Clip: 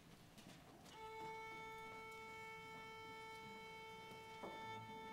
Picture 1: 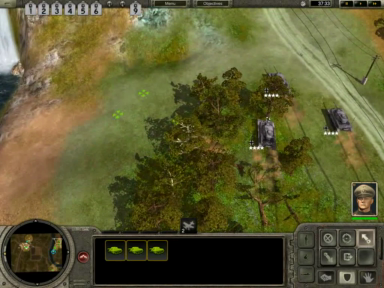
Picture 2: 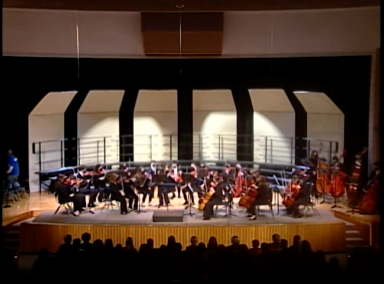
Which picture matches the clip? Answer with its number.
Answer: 2